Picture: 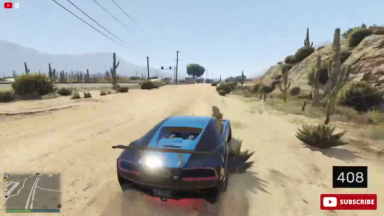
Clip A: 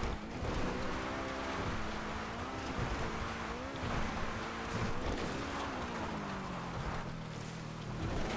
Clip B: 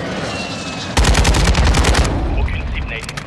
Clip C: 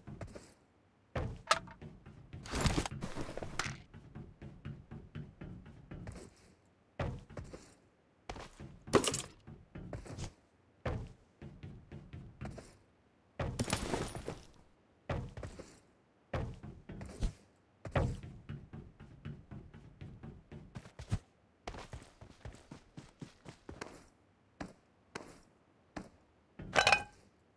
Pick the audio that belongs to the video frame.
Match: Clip A